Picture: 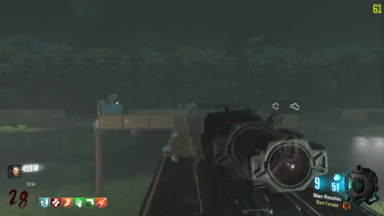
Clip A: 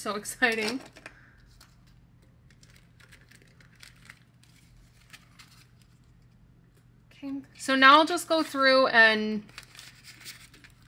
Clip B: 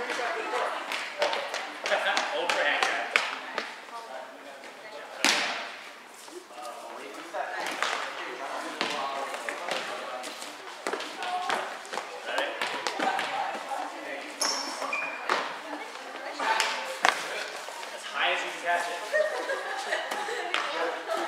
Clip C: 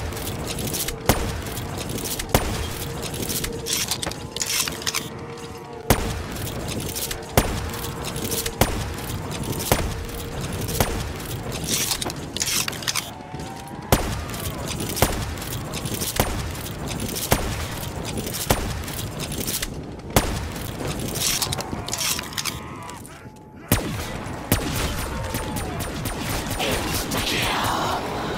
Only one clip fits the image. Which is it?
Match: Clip C